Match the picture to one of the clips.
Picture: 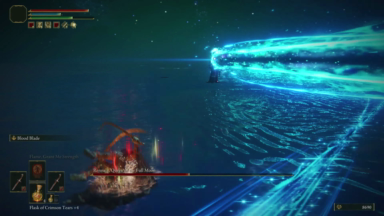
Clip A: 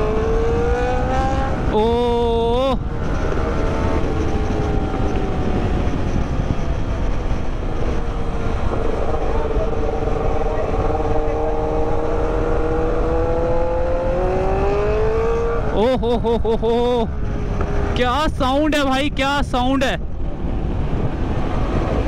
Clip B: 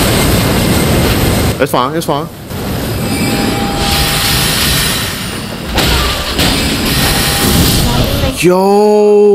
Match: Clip B